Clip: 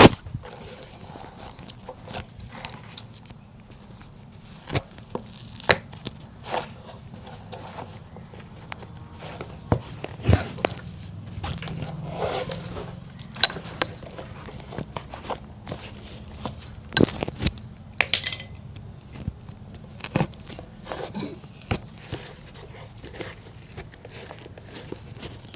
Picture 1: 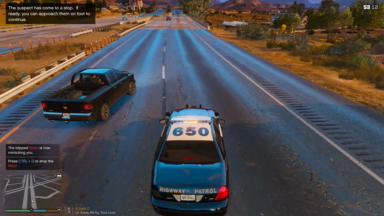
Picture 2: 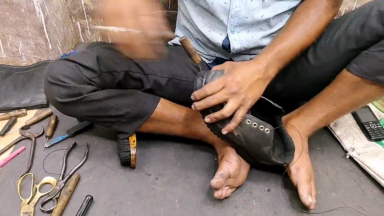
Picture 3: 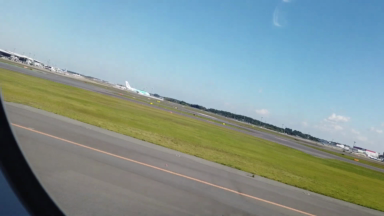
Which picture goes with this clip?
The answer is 2